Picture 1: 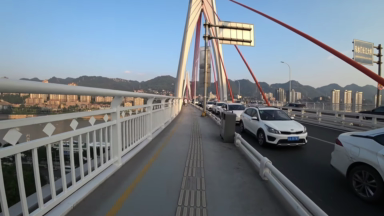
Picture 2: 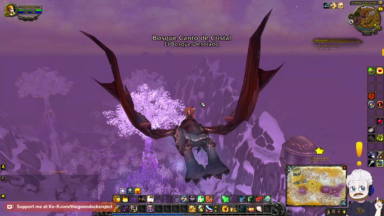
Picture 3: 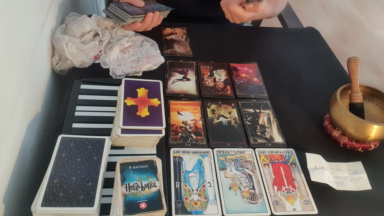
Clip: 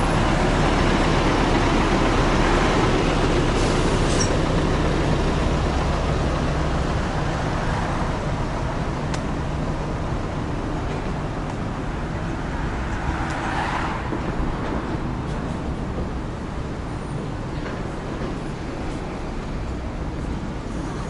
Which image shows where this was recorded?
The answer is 1